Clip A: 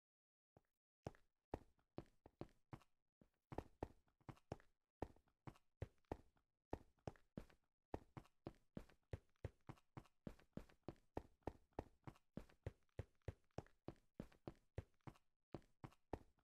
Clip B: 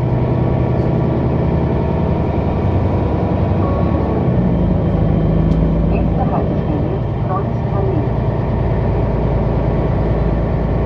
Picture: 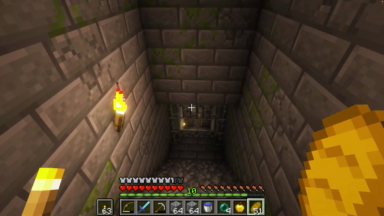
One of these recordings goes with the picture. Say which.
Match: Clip A